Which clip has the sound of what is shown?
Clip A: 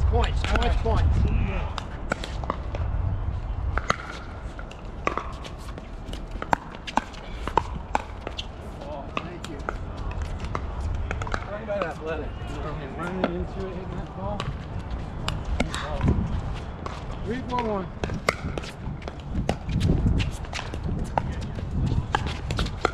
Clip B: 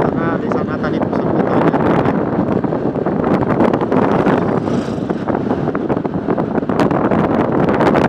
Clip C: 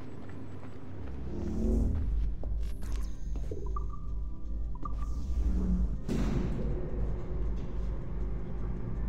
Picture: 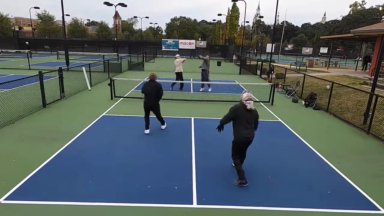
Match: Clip A